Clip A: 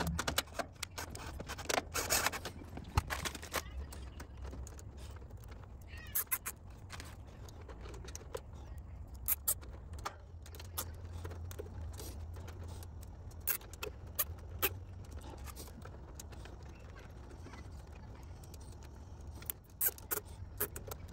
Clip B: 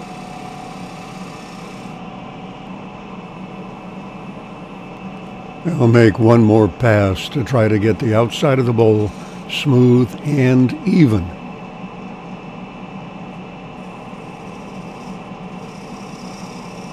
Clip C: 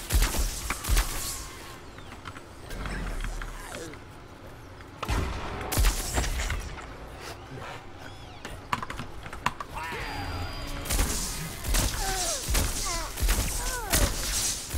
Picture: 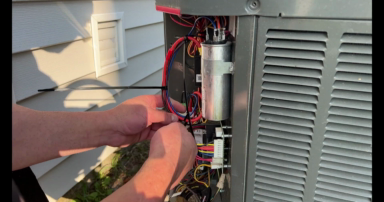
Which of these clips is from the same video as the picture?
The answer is A